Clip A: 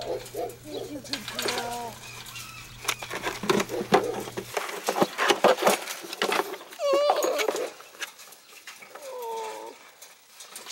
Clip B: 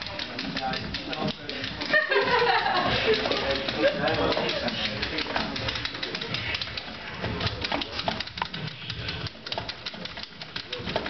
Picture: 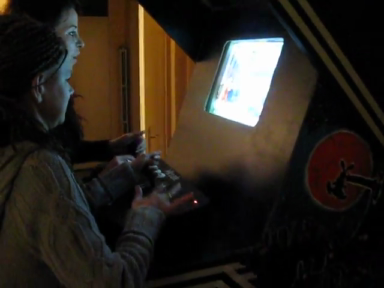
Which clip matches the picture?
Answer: B